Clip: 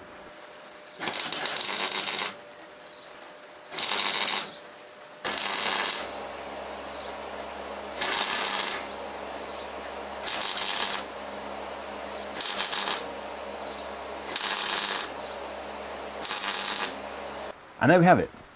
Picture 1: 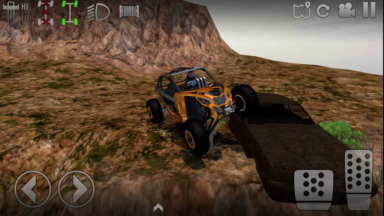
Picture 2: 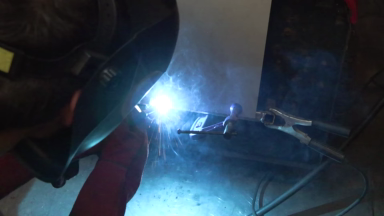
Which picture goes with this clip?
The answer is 2